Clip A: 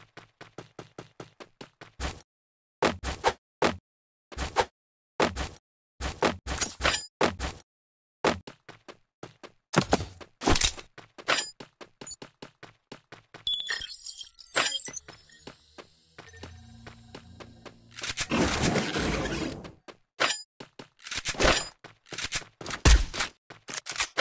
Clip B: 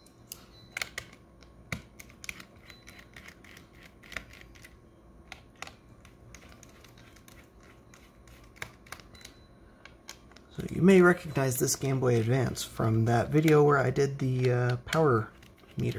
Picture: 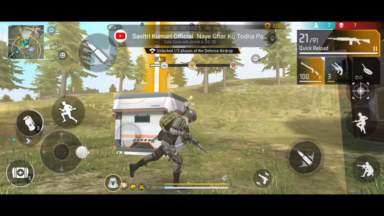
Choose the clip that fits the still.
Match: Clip A